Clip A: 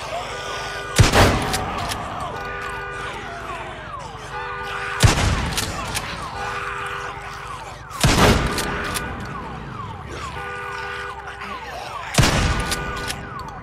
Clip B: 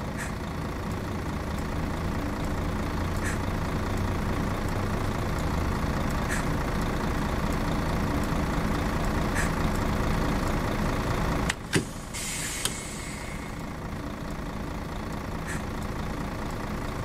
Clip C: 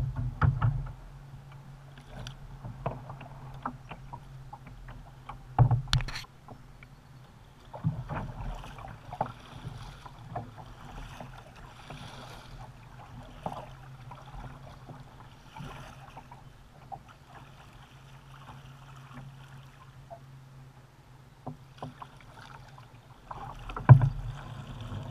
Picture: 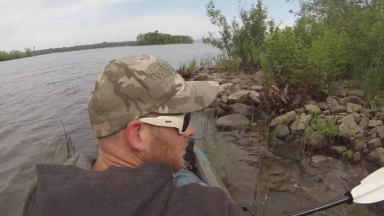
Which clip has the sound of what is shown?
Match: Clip C